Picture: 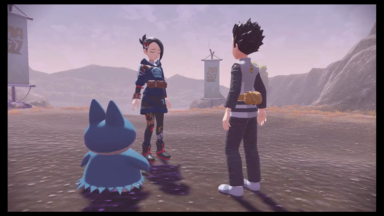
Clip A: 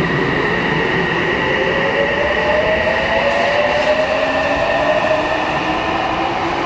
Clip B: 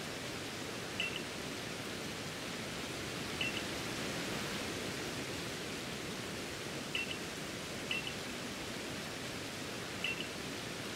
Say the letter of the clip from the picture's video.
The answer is B